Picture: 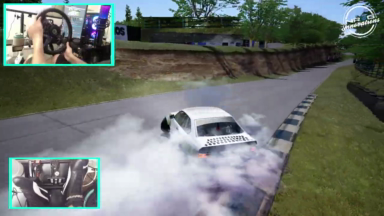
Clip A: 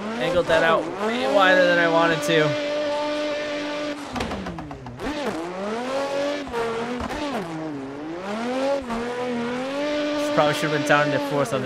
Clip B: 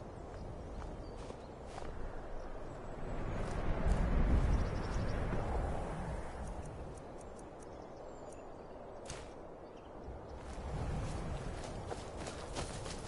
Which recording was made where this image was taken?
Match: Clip A